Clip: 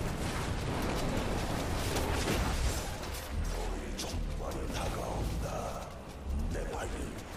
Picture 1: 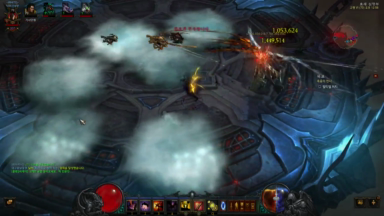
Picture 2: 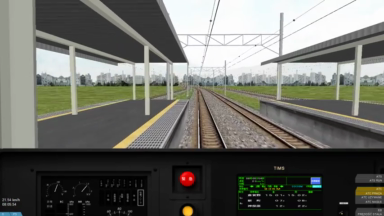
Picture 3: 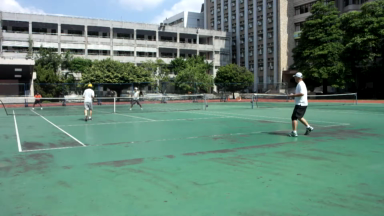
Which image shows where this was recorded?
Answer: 1